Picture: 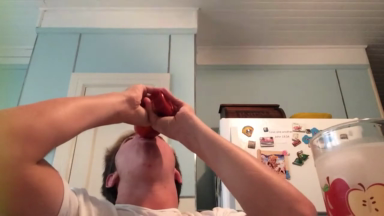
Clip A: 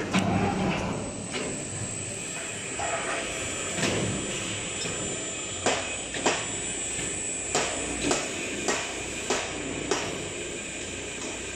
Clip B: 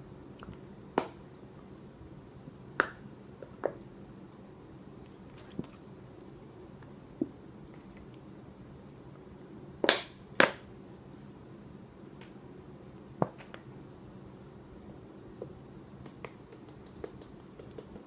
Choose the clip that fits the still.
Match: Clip B